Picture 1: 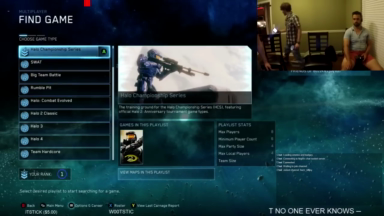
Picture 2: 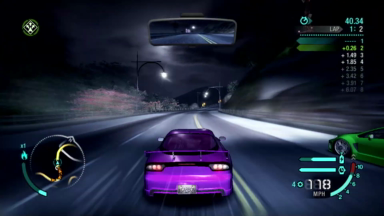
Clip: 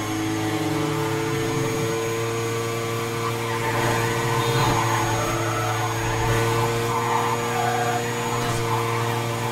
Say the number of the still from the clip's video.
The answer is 2